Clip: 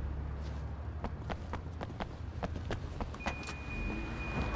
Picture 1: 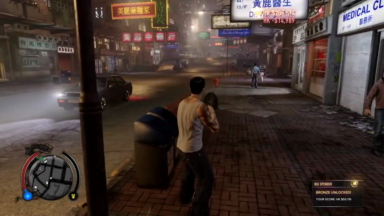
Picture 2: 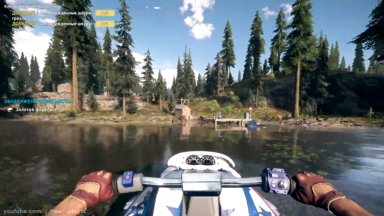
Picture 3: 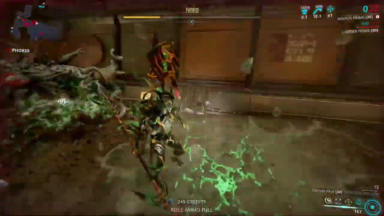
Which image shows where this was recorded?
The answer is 1